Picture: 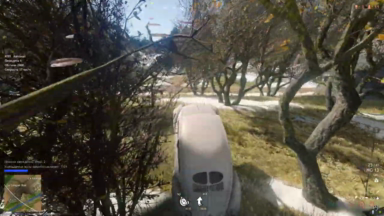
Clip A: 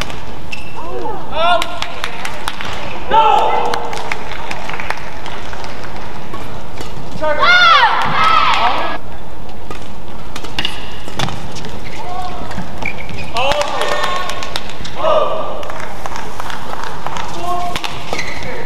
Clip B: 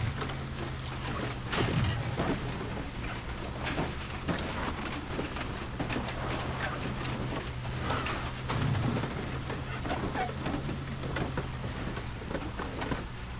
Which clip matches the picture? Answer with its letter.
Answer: B